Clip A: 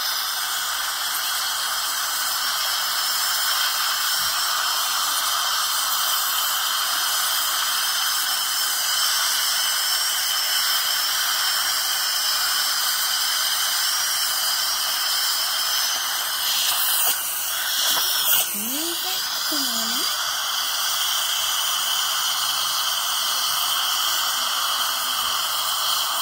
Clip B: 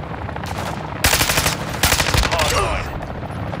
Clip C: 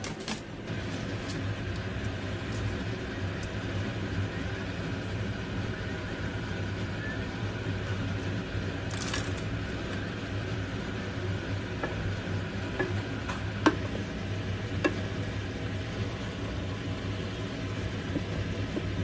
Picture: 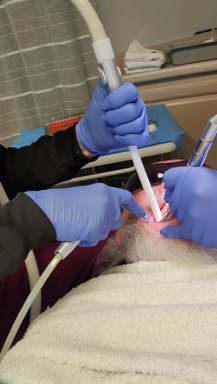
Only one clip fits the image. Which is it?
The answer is A